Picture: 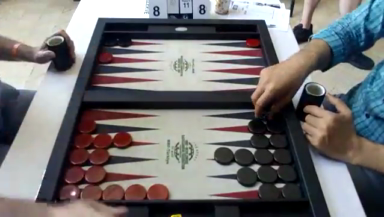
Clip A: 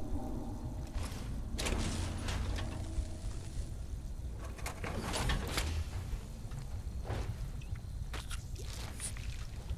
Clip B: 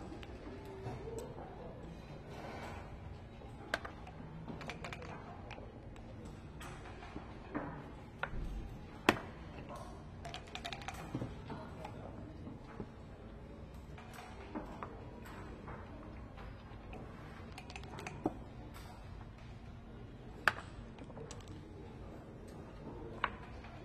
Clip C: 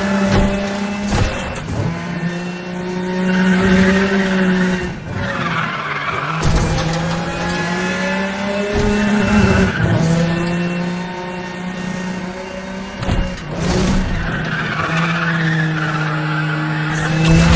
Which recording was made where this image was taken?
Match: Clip B